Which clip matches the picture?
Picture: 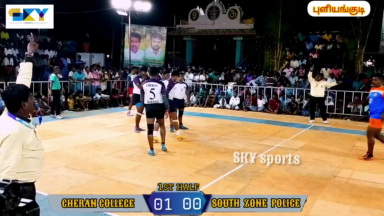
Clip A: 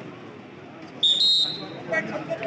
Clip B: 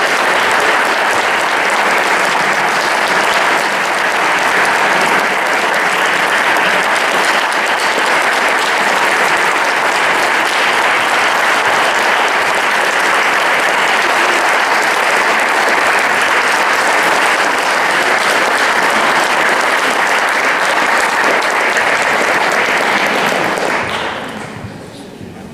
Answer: A